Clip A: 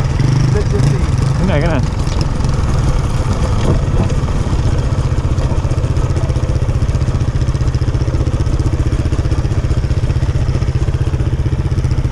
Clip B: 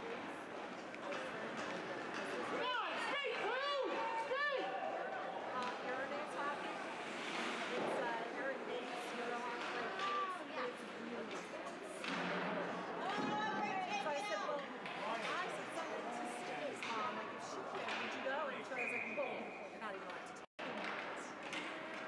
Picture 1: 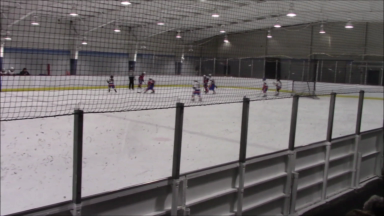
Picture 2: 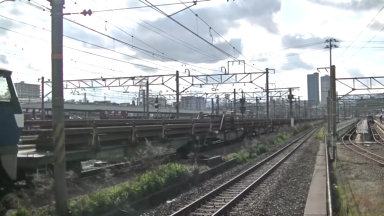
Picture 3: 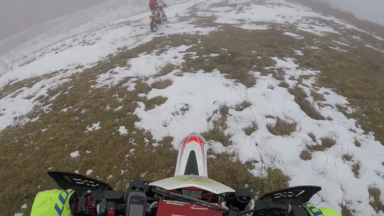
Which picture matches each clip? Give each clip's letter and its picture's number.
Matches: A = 3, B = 1